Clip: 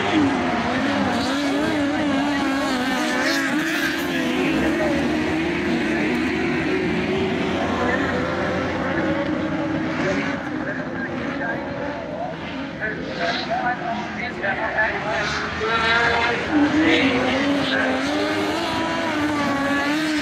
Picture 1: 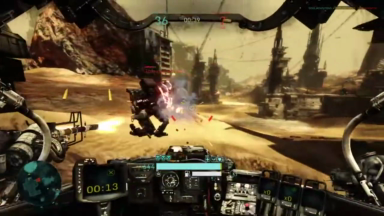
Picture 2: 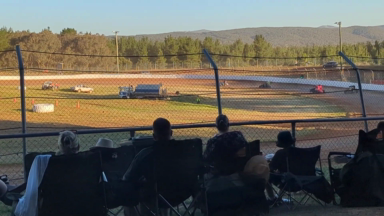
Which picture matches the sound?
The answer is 2